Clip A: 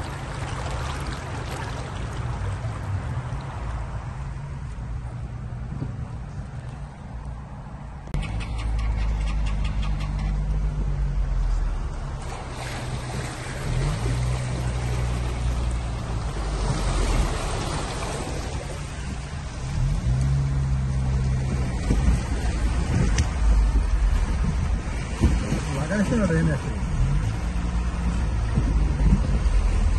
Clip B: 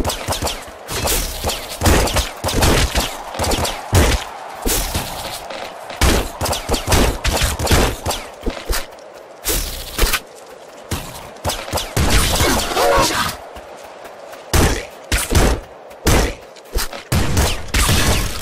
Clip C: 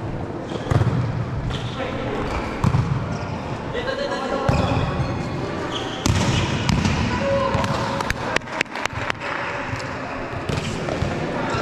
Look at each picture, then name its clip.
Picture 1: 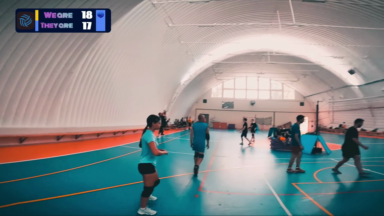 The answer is C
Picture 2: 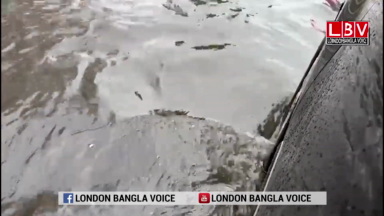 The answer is A